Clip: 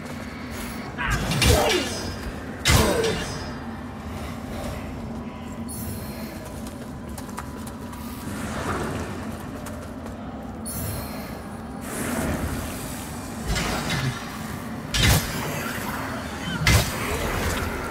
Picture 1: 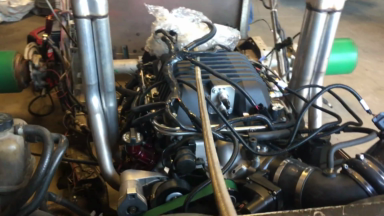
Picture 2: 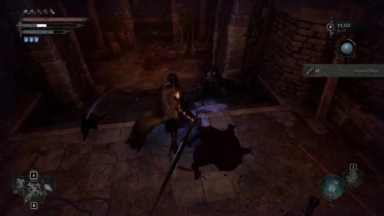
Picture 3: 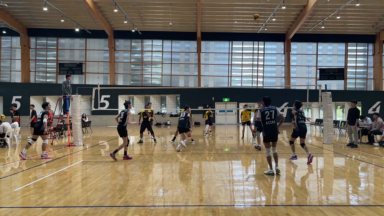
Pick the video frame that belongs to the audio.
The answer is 2